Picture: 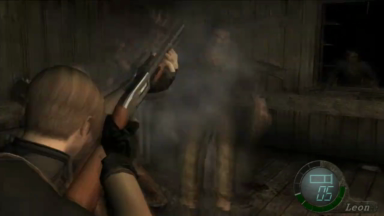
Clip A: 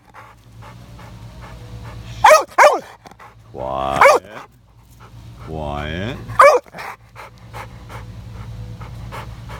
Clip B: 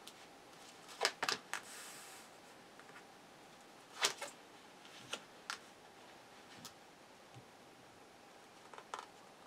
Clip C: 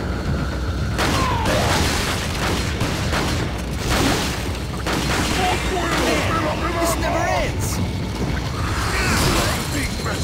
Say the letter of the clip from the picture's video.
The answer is C